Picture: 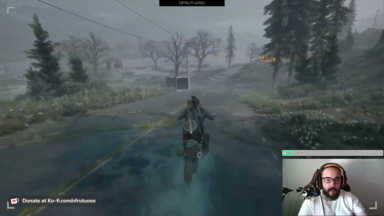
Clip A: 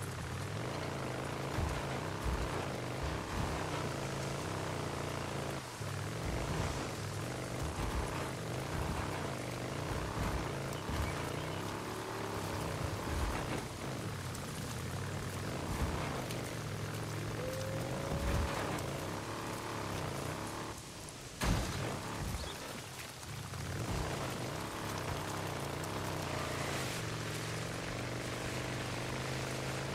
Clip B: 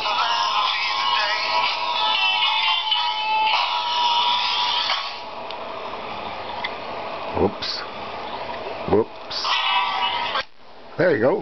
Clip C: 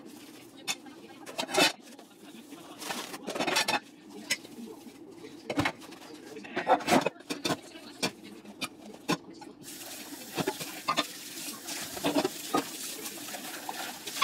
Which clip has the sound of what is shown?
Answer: A